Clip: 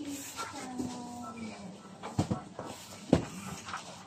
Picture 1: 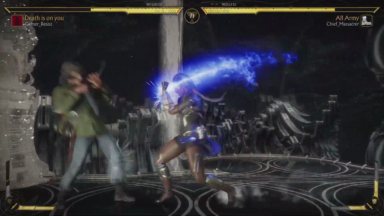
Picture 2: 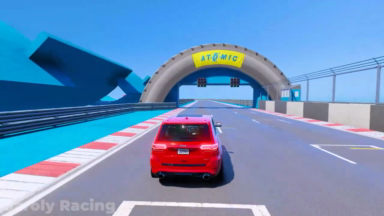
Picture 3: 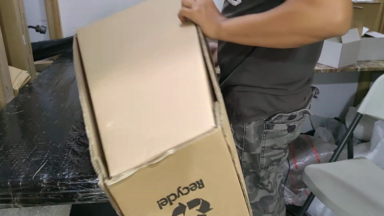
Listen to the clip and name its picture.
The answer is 3